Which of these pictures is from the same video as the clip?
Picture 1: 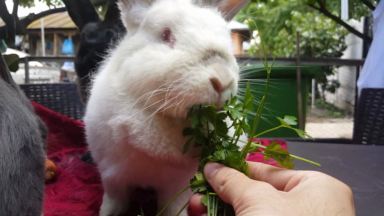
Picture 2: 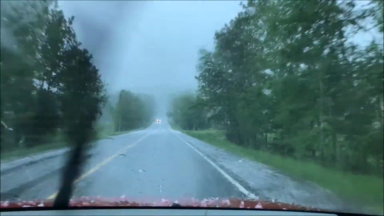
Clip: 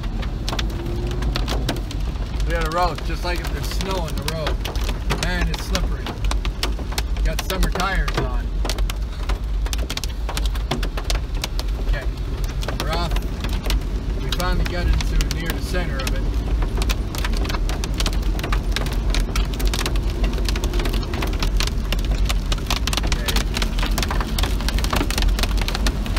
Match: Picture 2